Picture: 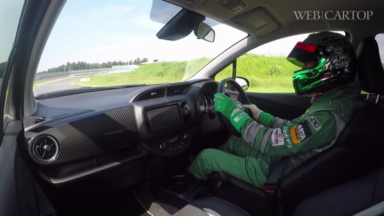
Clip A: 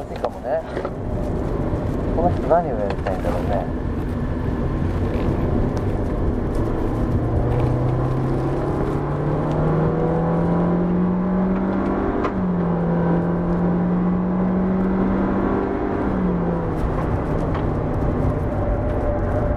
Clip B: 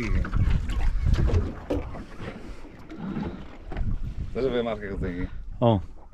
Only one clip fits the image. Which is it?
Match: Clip A